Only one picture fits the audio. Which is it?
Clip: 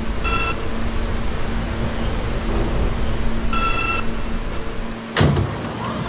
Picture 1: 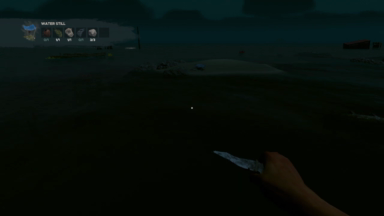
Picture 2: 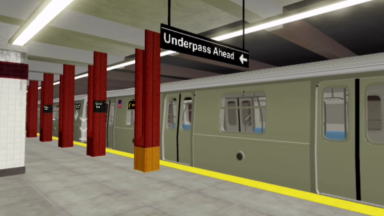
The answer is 2